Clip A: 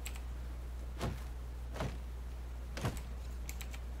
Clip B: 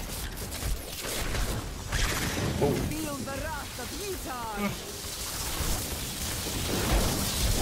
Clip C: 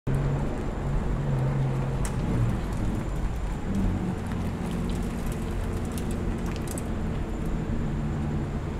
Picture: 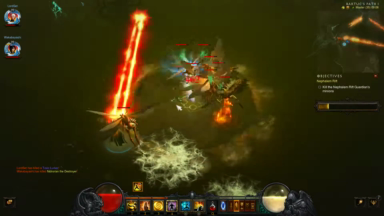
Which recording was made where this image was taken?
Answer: B